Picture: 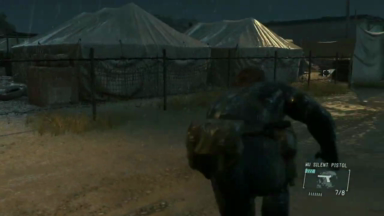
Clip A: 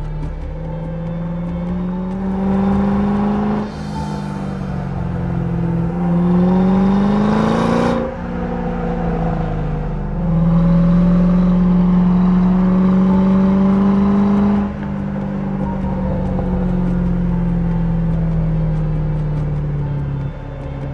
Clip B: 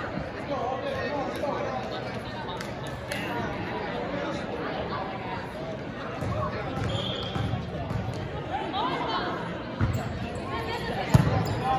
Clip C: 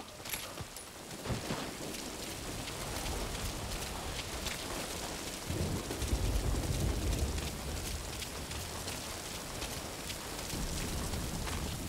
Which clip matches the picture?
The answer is C